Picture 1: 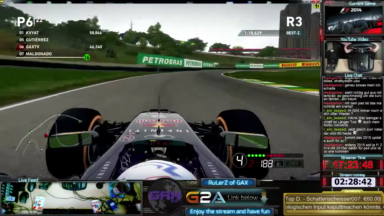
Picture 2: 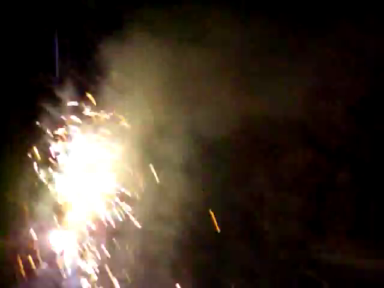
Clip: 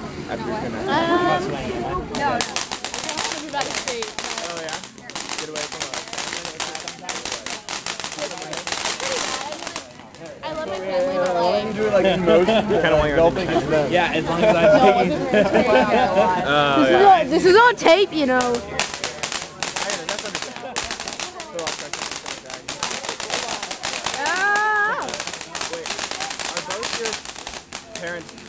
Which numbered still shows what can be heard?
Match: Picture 2